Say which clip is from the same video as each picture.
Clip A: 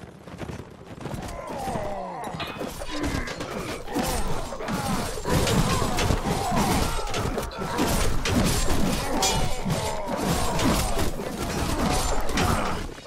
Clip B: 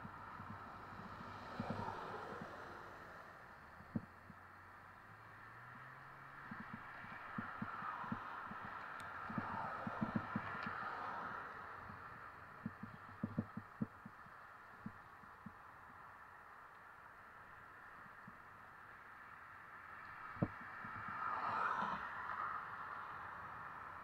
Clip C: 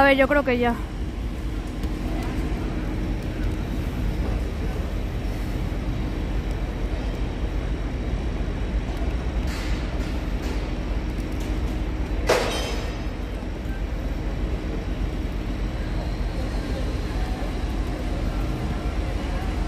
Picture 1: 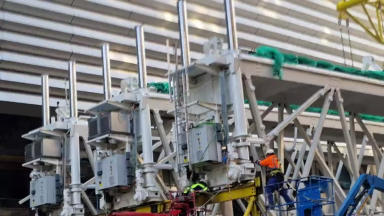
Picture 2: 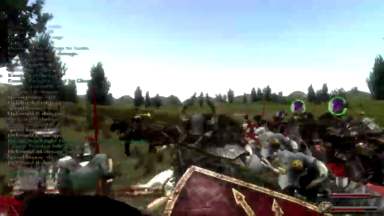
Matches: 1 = C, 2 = A